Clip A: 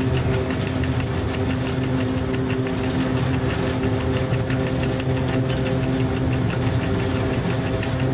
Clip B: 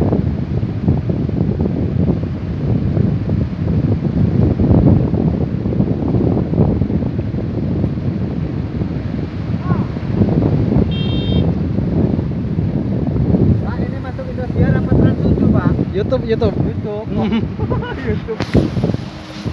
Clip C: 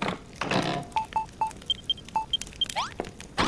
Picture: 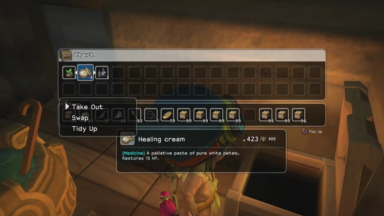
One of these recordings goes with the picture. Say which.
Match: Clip C